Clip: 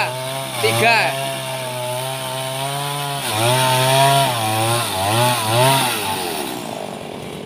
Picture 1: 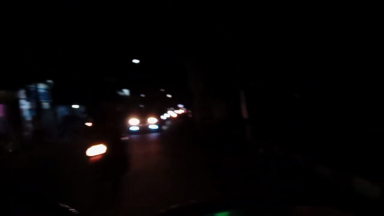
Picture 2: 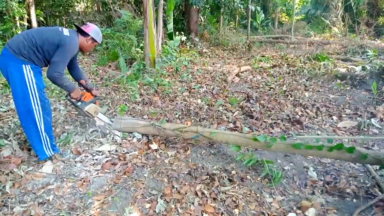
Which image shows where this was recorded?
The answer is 2